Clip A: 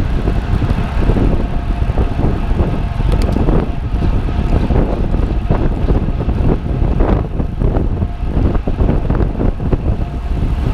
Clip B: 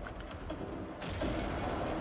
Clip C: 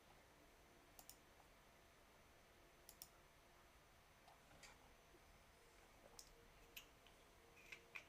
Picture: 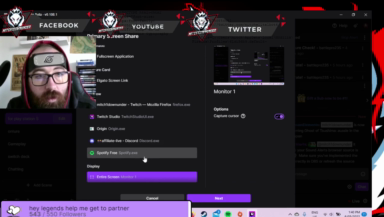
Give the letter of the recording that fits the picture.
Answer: C